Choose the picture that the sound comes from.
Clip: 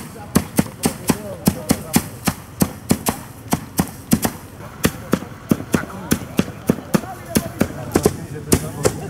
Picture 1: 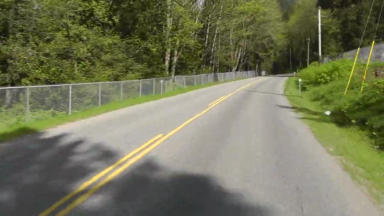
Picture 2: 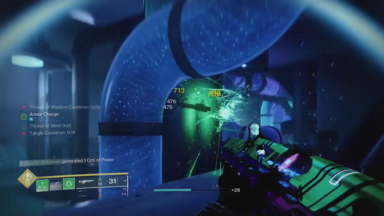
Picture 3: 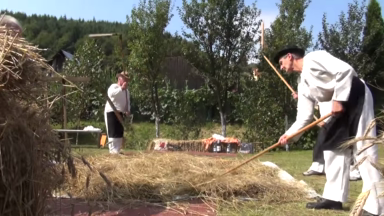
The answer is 3